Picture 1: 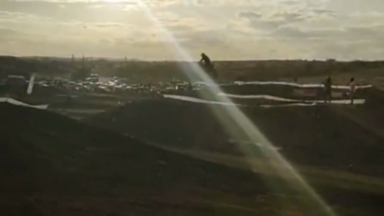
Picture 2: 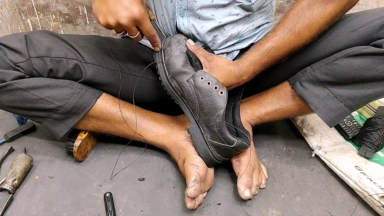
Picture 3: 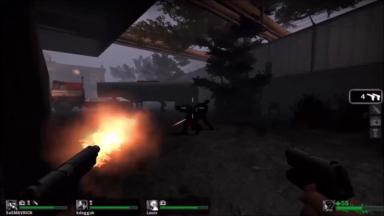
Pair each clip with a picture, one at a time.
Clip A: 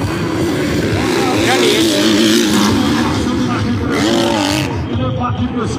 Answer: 1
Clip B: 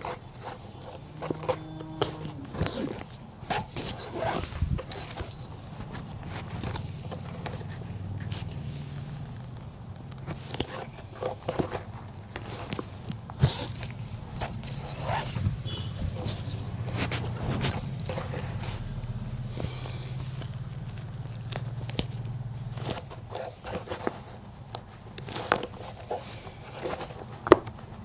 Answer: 2